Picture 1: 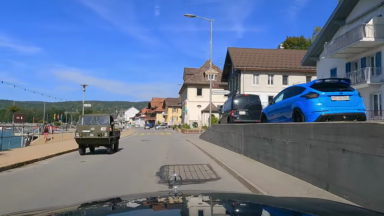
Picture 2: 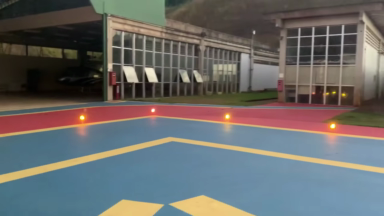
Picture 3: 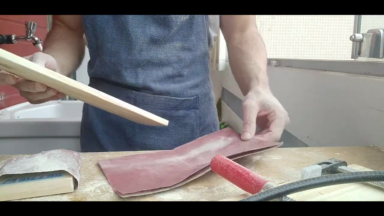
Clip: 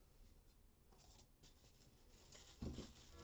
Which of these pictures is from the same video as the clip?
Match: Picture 3